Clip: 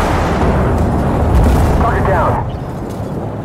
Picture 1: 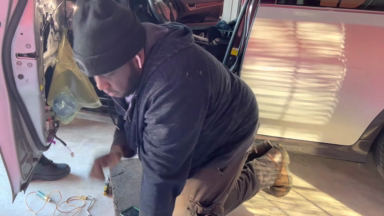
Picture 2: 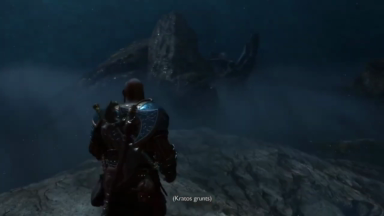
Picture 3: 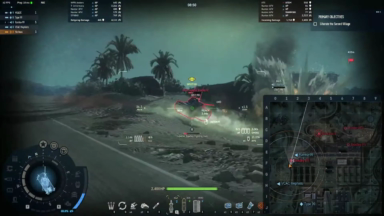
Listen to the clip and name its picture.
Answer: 3